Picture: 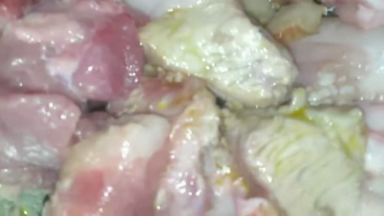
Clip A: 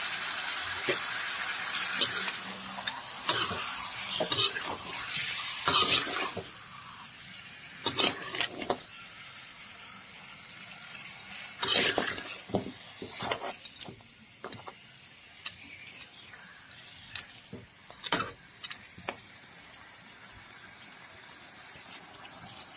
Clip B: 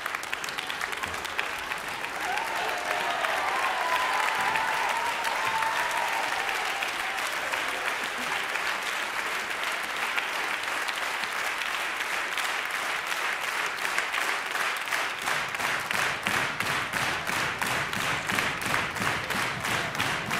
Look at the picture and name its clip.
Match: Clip A